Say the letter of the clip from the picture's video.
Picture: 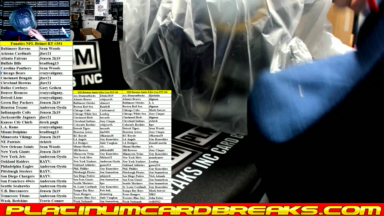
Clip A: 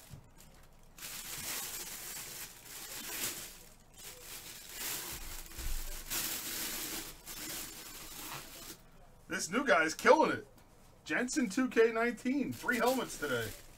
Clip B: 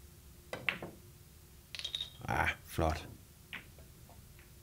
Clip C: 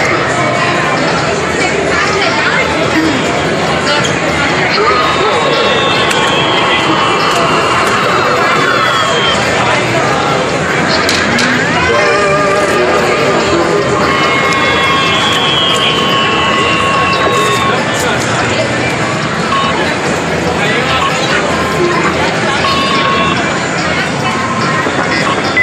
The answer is A